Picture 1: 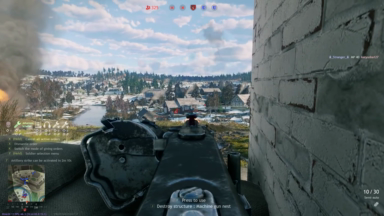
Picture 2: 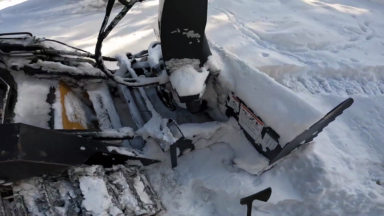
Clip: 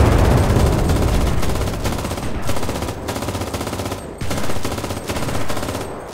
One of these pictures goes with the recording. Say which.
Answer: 1